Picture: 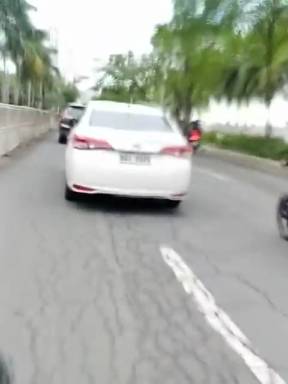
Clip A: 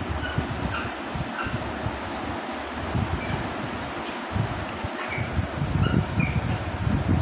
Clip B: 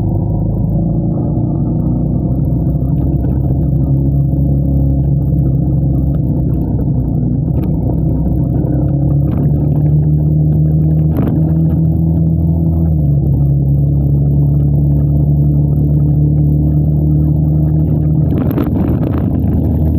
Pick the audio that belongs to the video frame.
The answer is B